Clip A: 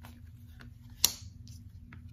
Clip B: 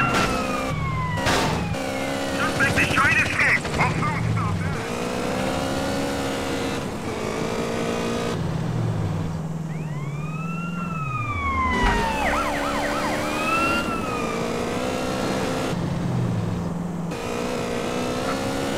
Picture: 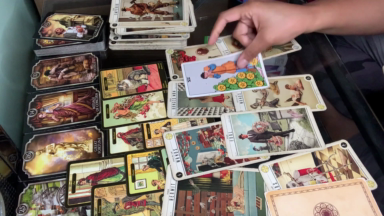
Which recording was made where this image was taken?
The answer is A